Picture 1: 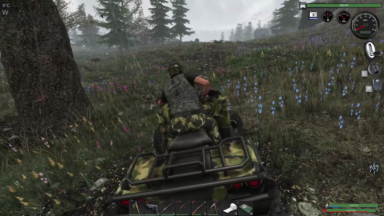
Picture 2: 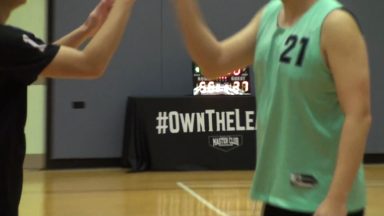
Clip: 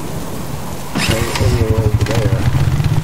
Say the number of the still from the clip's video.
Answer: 1